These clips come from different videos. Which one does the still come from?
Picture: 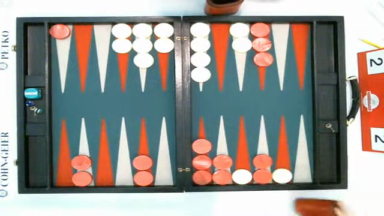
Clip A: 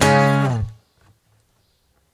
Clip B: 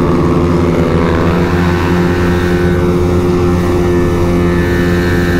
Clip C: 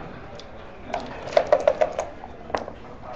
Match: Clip C